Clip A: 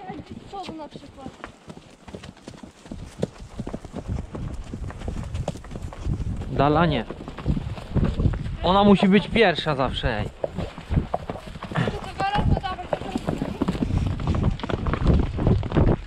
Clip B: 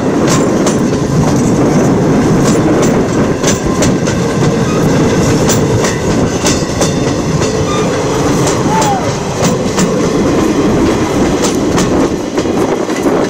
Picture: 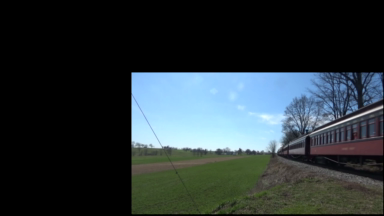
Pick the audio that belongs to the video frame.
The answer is B